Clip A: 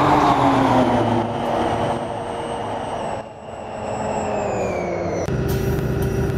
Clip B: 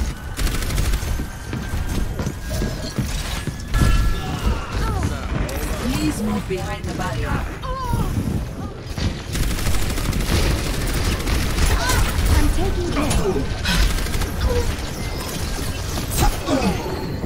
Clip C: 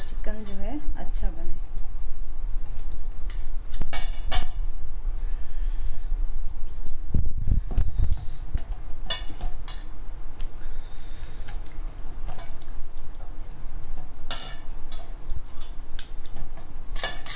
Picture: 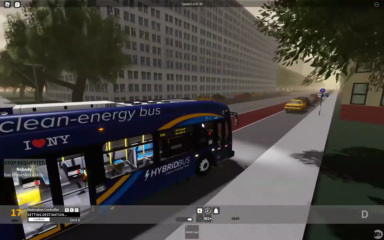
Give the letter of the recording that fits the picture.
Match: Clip A